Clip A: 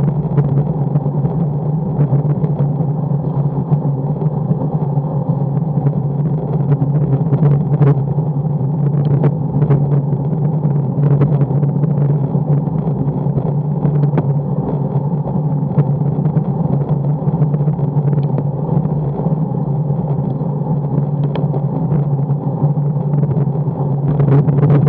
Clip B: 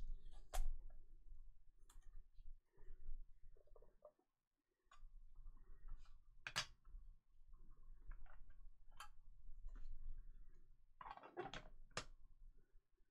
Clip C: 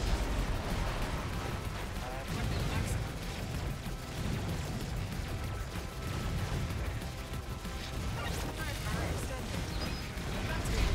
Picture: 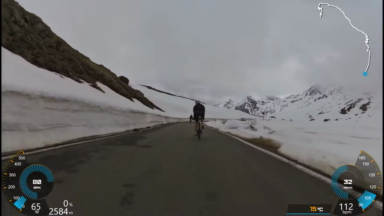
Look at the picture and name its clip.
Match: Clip A